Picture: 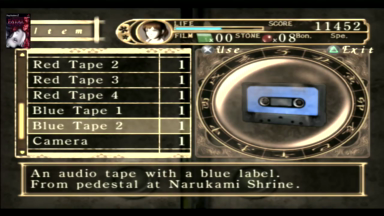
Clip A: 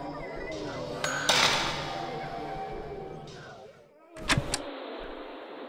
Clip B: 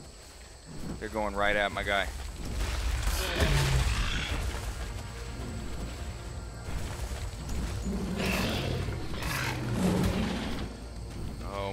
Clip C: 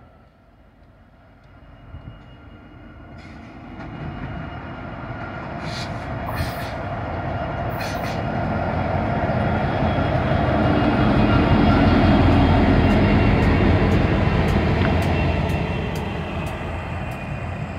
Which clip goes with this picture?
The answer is A